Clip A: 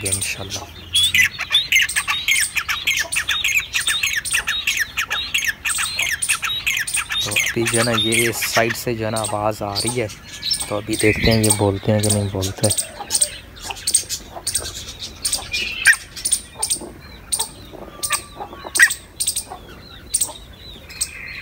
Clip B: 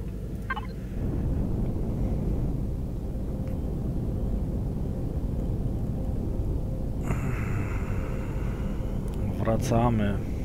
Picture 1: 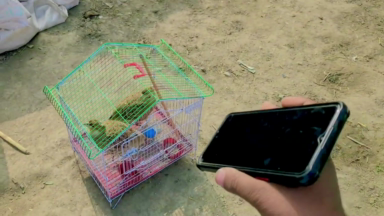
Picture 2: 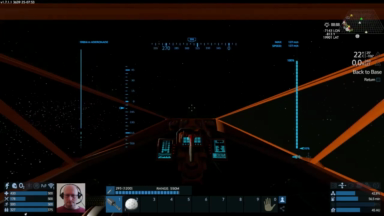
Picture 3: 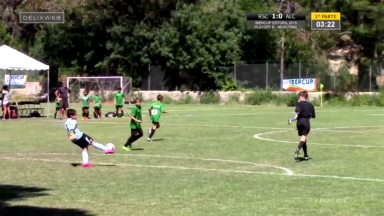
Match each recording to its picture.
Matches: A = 1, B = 2